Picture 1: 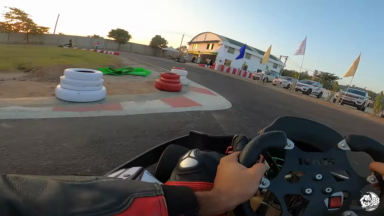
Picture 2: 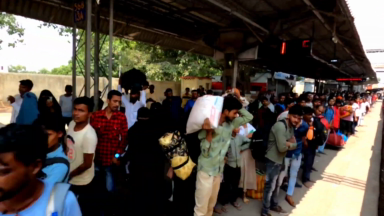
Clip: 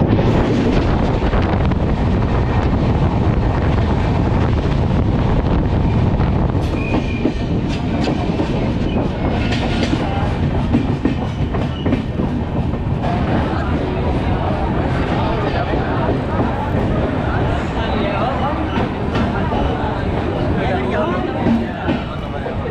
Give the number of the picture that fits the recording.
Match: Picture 2